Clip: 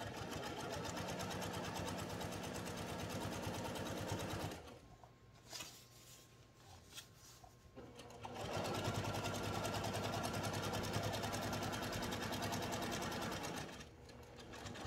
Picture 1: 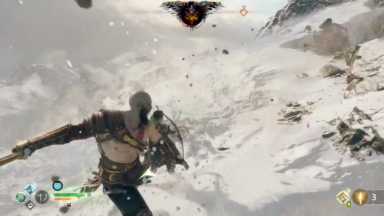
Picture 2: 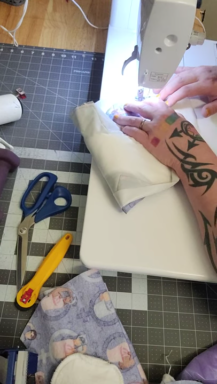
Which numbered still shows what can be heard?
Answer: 2